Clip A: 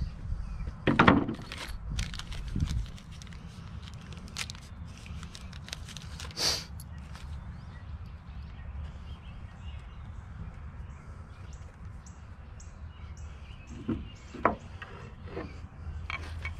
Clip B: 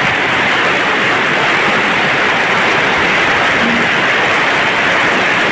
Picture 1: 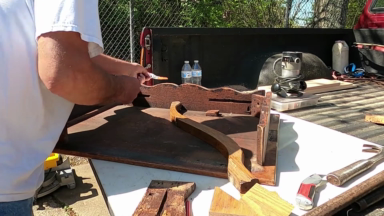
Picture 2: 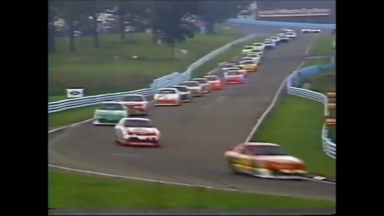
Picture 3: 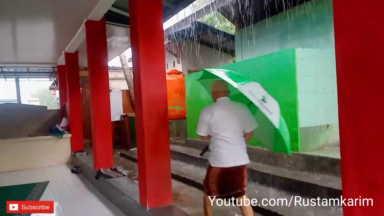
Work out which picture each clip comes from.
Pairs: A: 1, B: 3